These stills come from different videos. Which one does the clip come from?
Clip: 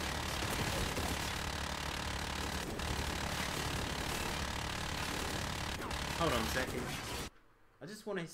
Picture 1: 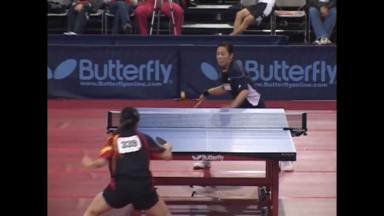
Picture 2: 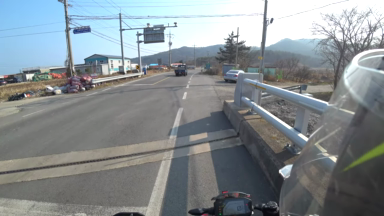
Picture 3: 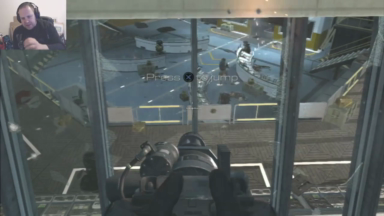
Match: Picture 3